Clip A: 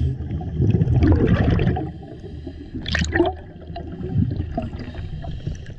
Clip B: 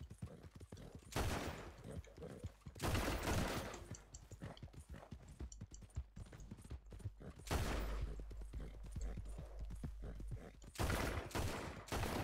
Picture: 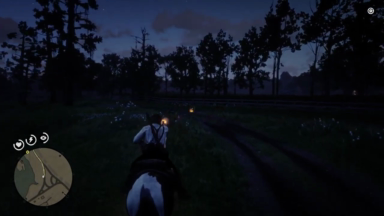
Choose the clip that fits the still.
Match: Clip B